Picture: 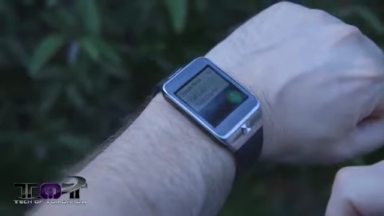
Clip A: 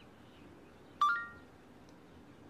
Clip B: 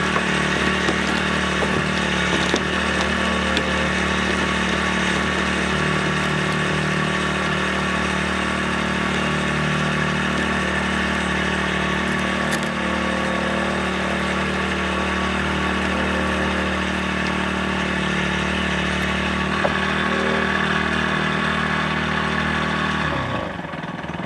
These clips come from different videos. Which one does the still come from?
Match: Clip A